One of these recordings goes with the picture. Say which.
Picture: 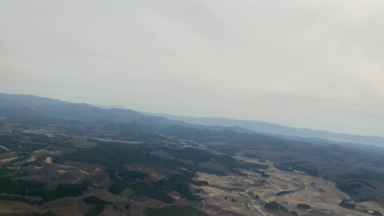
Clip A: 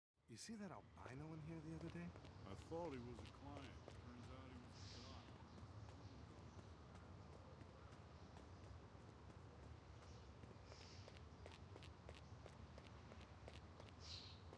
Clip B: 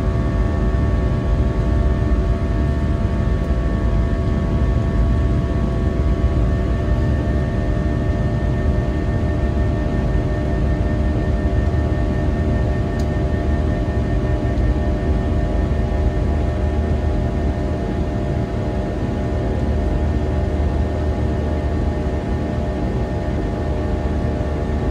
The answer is B